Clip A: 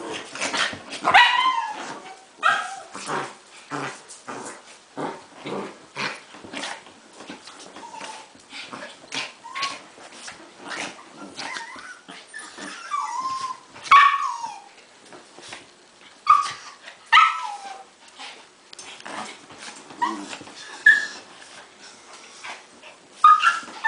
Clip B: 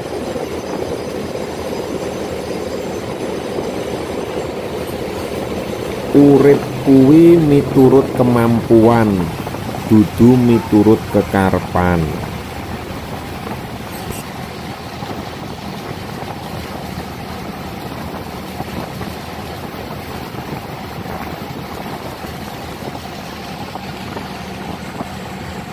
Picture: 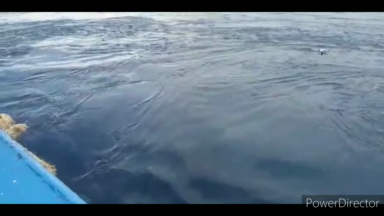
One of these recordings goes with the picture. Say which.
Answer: B